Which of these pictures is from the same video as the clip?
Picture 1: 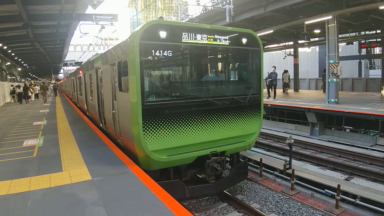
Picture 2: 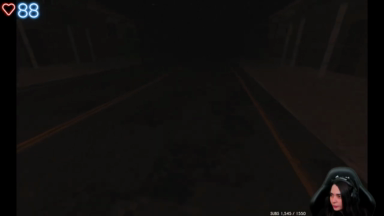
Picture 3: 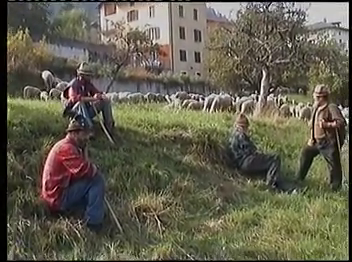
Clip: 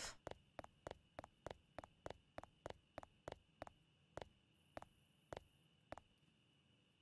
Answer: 2